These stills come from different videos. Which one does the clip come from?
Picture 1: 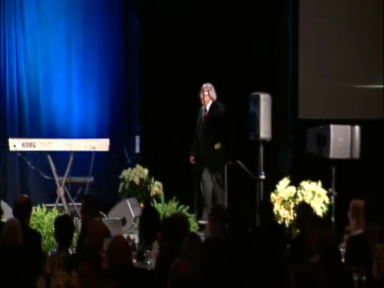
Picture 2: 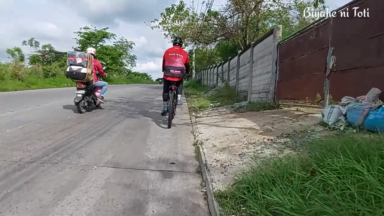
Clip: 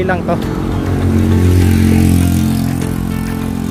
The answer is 2